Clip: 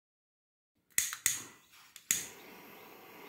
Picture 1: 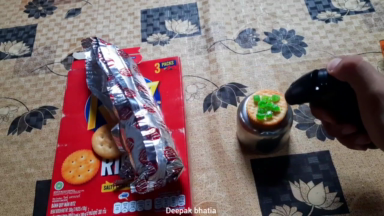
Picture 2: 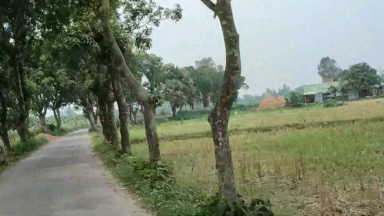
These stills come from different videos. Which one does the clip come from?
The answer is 1